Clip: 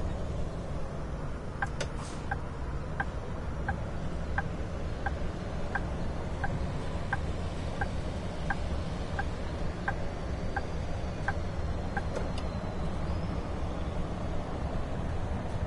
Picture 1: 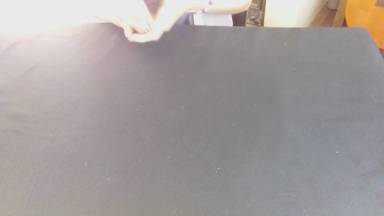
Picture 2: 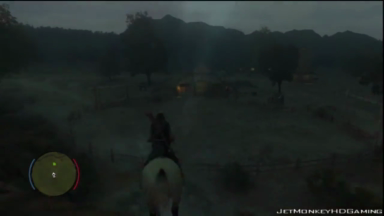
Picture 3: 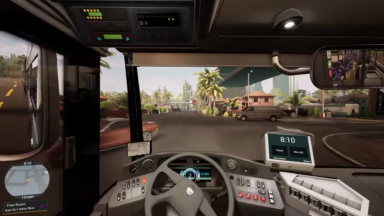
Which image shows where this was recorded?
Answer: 3